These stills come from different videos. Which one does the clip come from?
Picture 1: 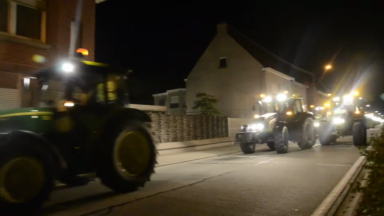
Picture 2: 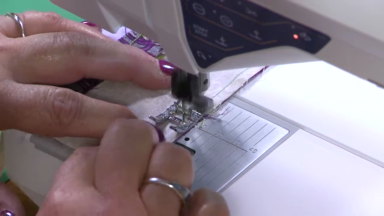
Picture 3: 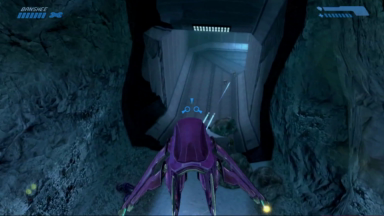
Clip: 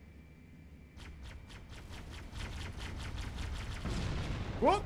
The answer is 3